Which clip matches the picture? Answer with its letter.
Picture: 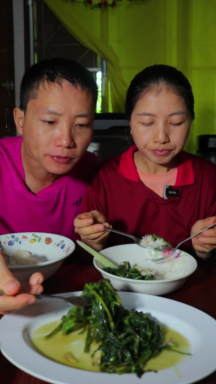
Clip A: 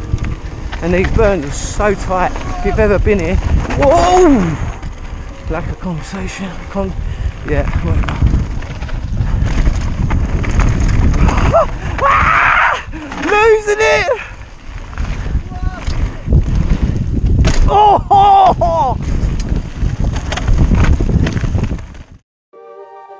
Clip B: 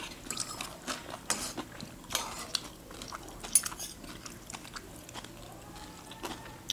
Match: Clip B